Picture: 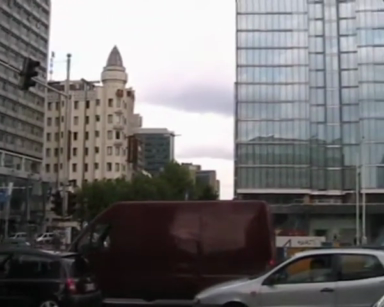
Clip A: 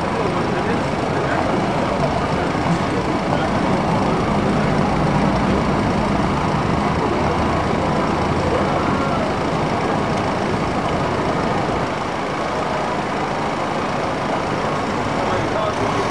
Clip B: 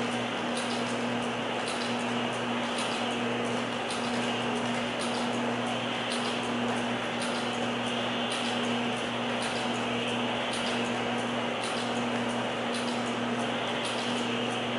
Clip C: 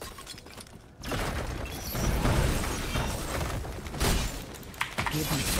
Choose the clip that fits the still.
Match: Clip A